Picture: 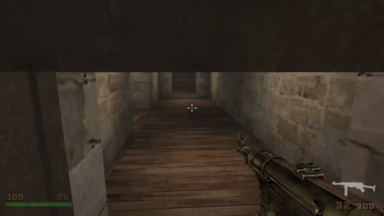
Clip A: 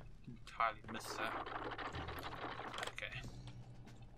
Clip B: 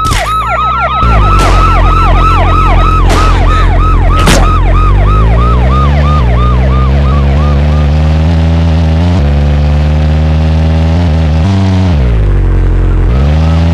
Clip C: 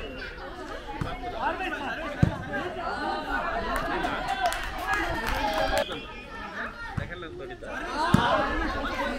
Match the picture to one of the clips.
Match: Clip A